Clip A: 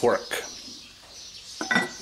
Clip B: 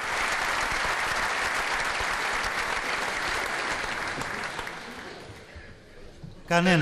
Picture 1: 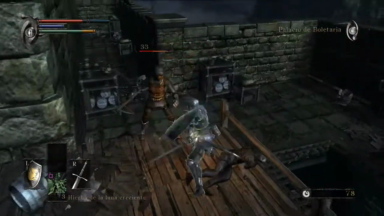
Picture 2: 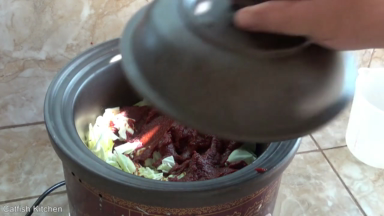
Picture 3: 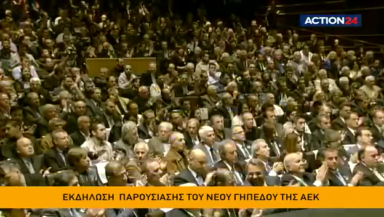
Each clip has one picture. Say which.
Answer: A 2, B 3